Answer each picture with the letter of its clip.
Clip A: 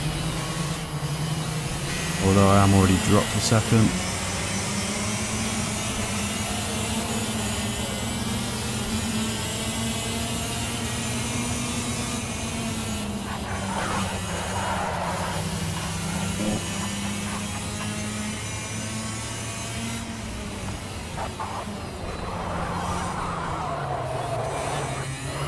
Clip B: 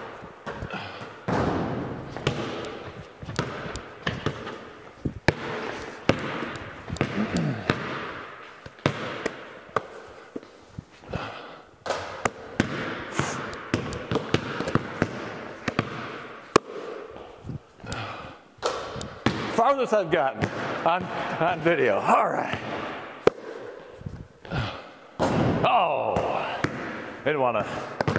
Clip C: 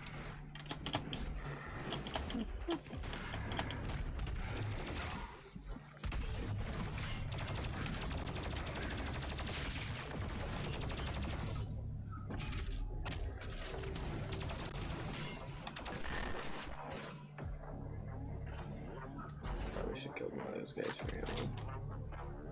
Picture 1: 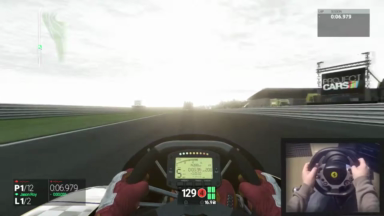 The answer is A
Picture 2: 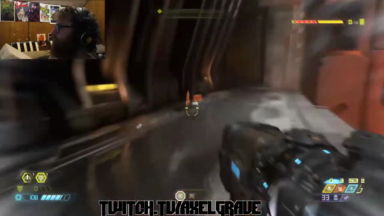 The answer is C